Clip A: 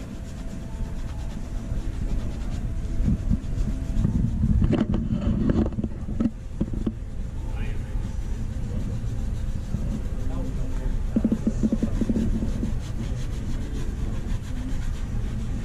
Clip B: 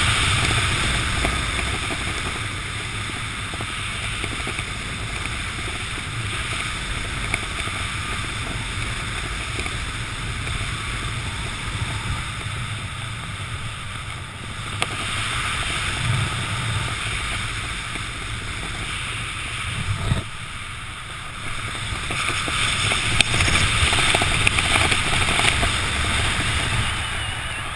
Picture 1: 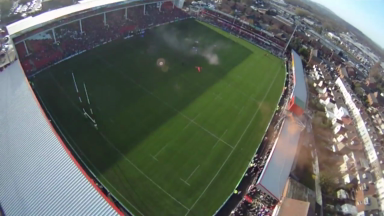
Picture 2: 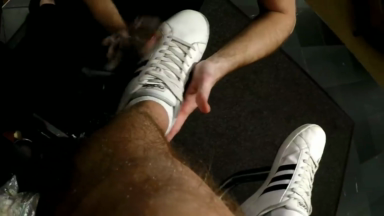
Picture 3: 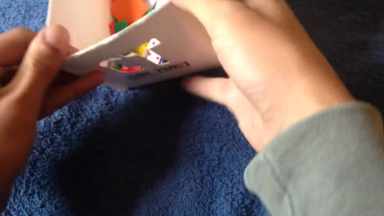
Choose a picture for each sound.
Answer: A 2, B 1